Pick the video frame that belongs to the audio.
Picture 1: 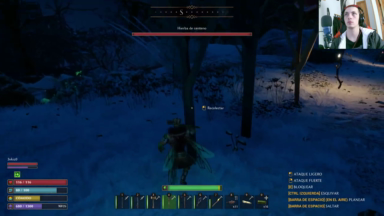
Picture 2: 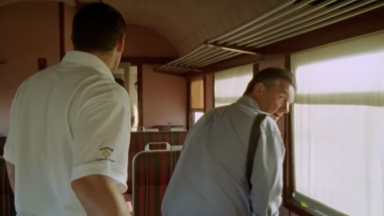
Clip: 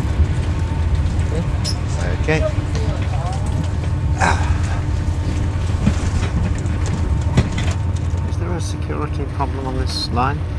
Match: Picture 2